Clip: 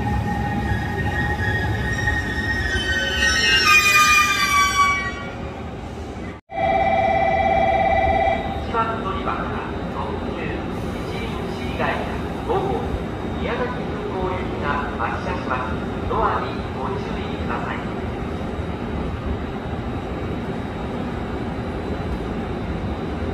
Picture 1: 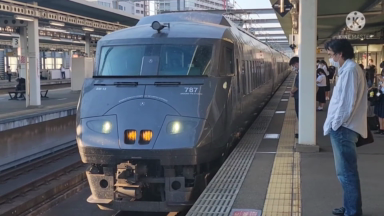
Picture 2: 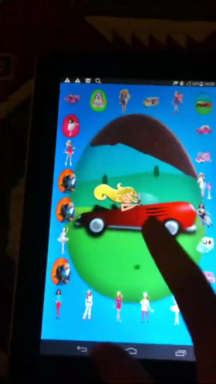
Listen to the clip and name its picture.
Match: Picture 1